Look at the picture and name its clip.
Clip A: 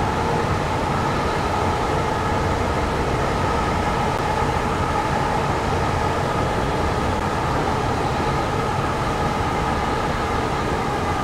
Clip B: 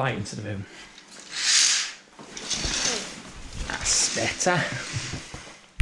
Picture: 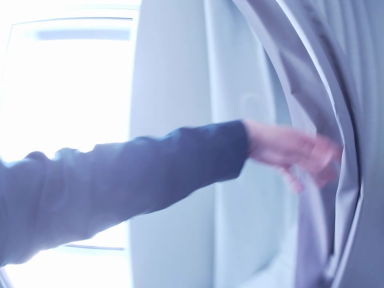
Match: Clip B